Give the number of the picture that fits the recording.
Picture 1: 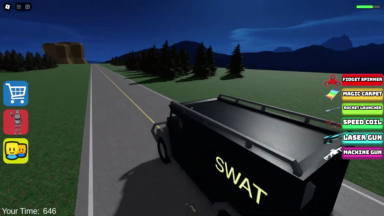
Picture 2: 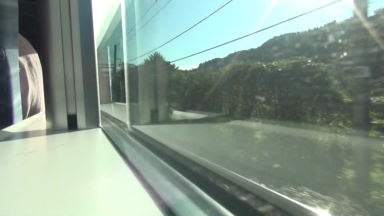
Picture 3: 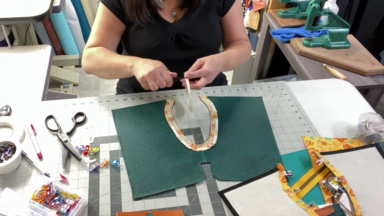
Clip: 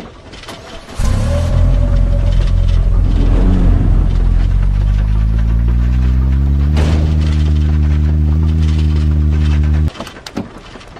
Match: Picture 1